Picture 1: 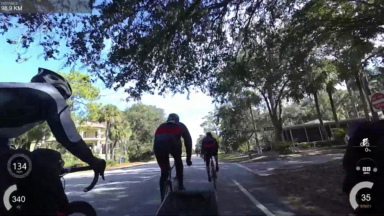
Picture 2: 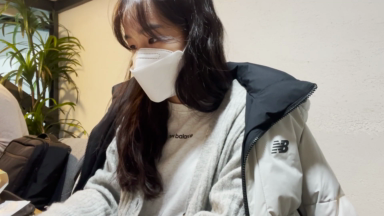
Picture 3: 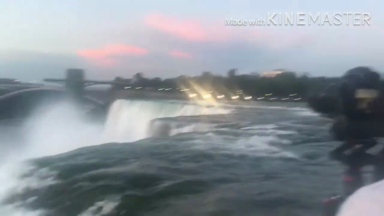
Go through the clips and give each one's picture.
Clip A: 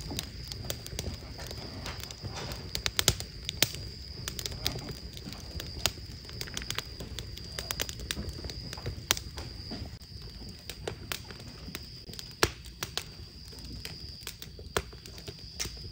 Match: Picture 2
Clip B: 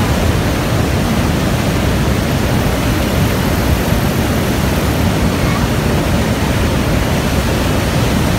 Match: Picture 3